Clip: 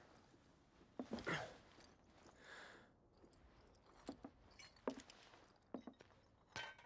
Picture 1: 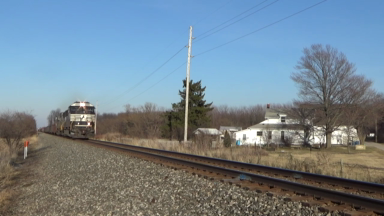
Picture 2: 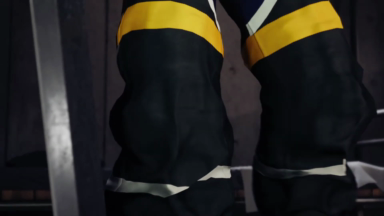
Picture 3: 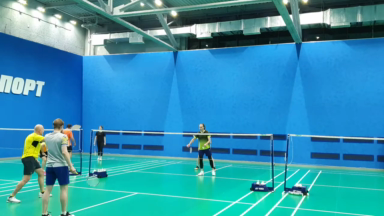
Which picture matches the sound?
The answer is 2